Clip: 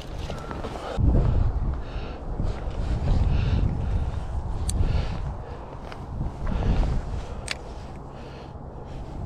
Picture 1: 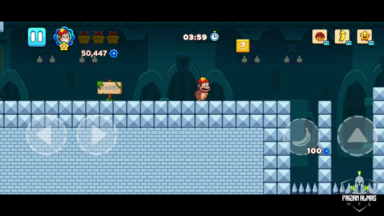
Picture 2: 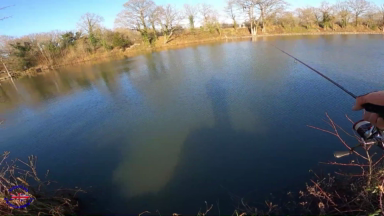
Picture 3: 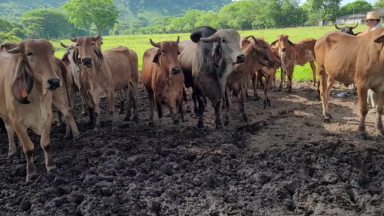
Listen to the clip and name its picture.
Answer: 2